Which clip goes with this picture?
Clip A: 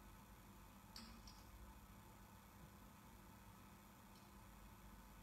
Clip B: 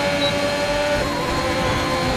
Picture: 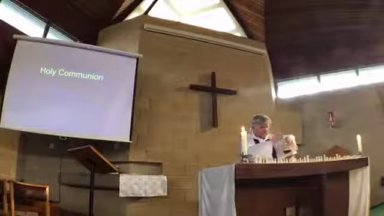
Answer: A